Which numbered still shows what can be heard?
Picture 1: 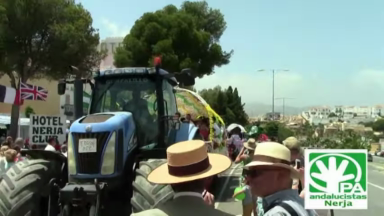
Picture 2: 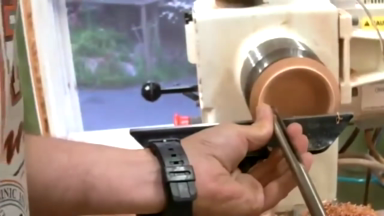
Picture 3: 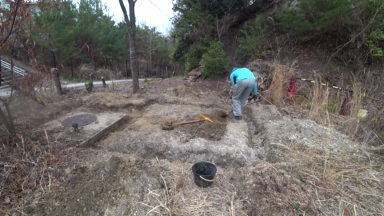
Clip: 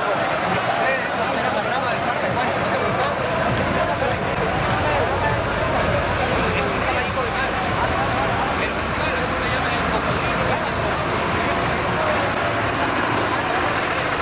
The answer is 1